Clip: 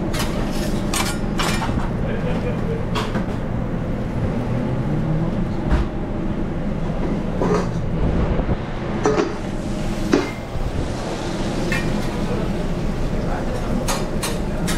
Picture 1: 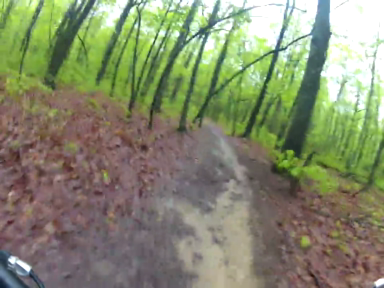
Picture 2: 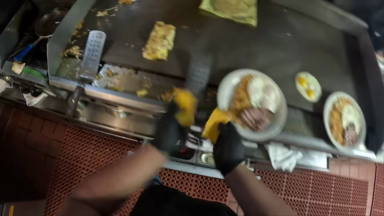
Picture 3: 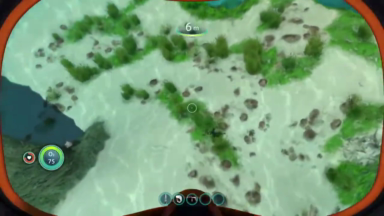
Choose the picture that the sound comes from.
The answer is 2